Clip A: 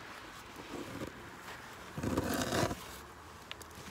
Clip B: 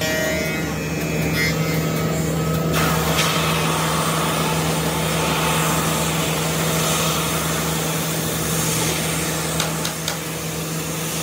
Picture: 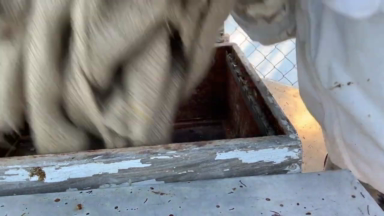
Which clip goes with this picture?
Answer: A